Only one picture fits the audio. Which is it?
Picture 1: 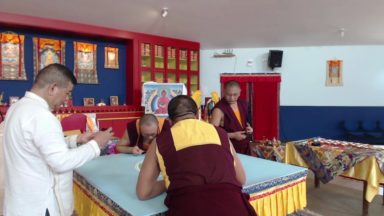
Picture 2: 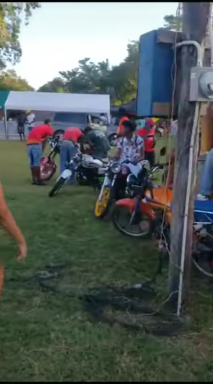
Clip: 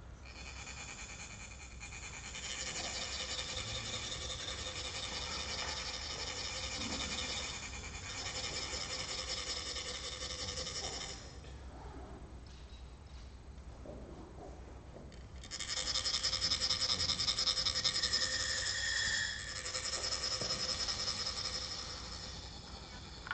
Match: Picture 1